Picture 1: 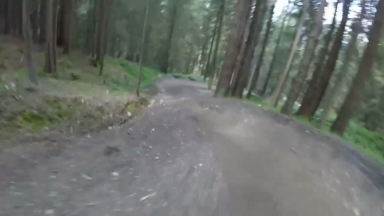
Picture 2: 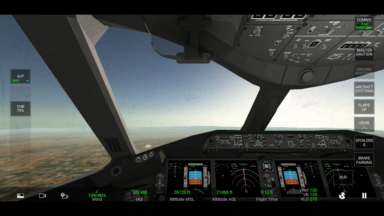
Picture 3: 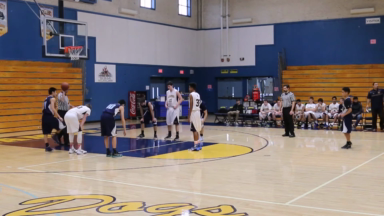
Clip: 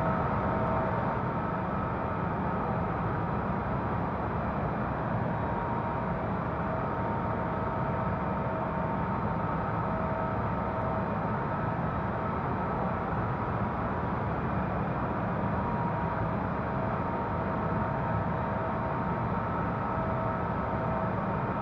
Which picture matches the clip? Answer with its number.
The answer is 2